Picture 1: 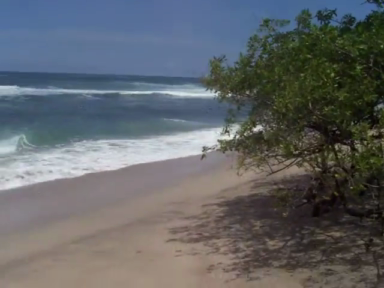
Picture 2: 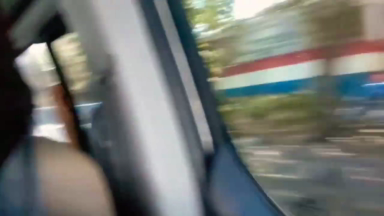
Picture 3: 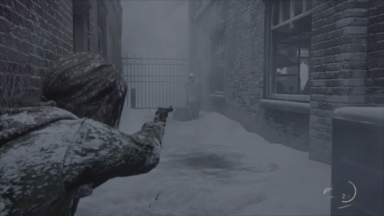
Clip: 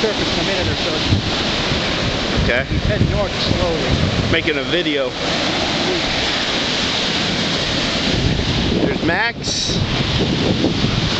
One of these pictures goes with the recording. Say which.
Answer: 1